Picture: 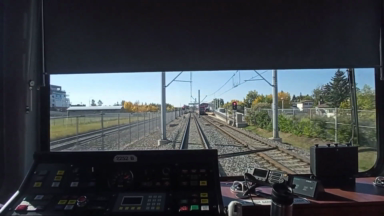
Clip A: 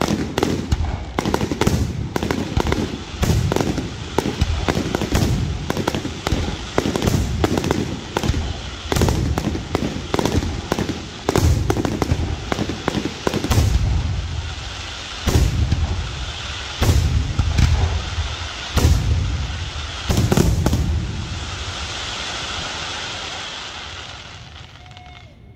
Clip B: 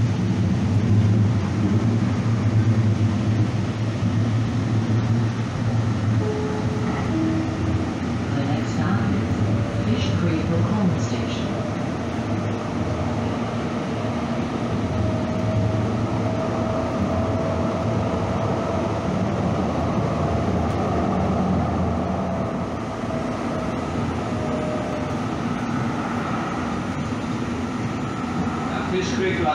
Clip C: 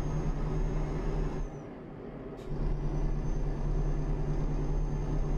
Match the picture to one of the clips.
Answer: B